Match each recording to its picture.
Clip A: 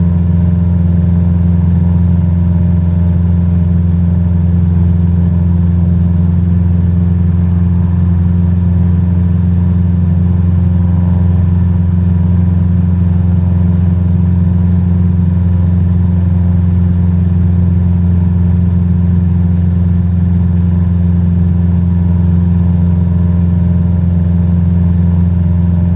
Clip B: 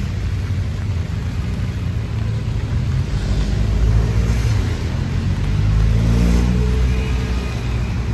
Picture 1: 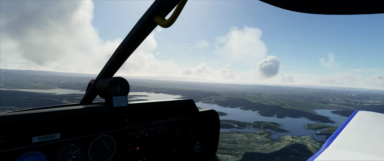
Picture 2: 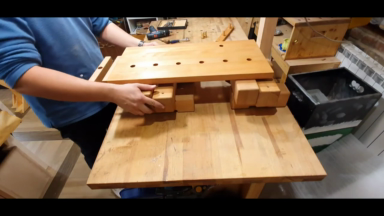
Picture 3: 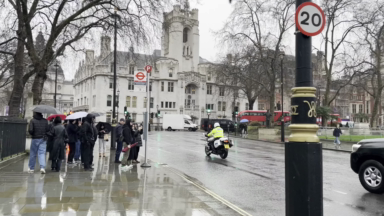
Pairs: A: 1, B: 3